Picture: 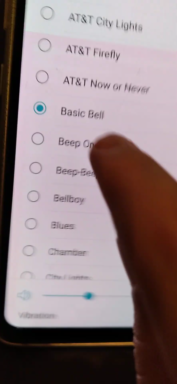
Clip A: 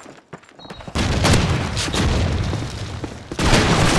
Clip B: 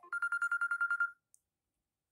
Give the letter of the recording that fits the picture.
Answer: B